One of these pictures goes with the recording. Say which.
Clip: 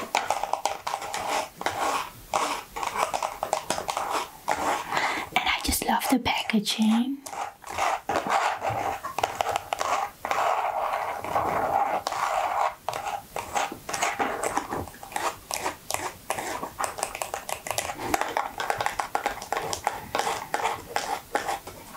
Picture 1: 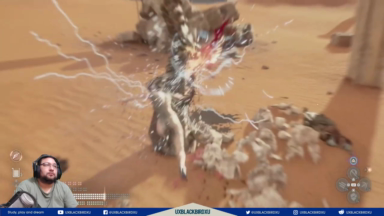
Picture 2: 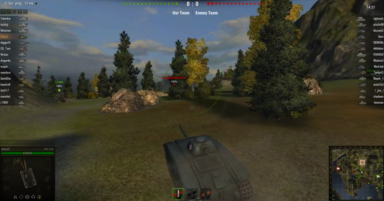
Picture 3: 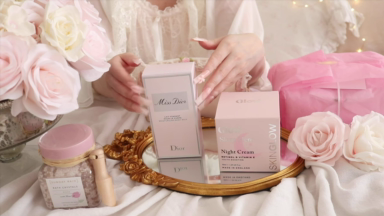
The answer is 3